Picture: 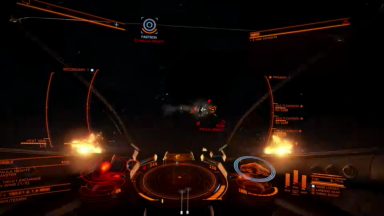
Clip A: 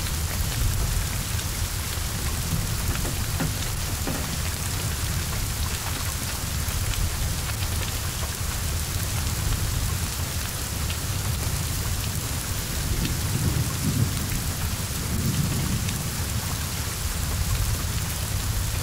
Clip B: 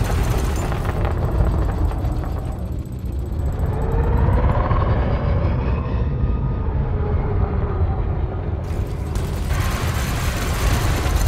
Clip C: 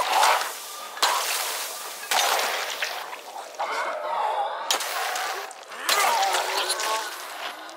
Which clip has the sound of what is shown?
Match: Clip B